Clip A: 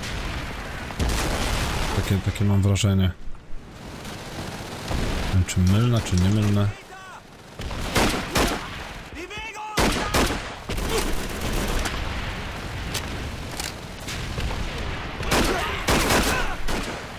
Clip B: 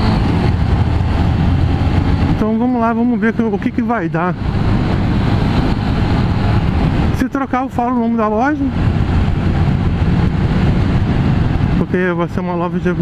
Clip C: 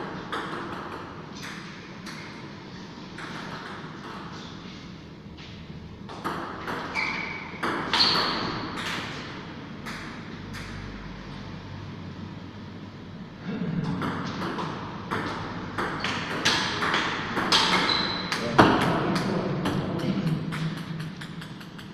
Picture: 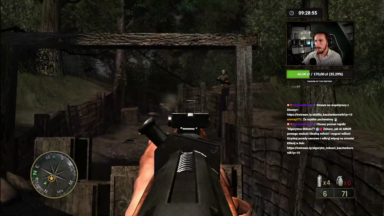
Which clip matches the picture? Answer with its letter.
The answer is A